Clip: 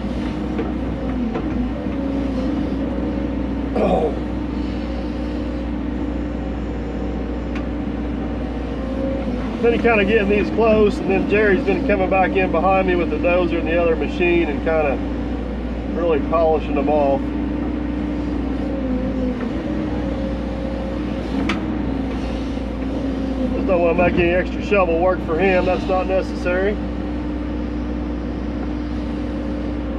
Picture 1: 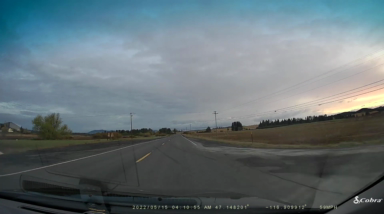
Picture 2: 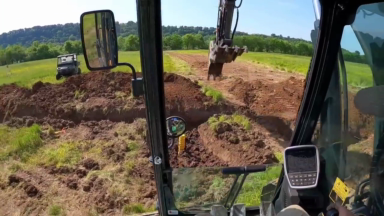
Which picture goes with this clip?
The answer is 2